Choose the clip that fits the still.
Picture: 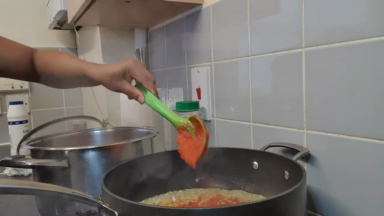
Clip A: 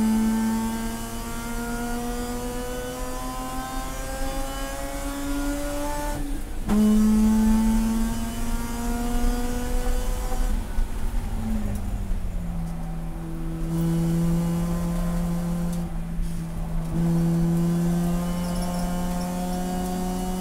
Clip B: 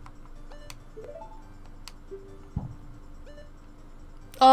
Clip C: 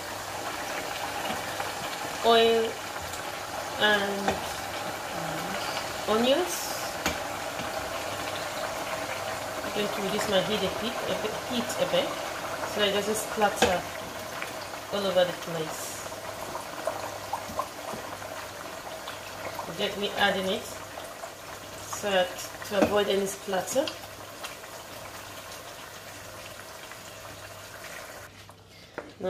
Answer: C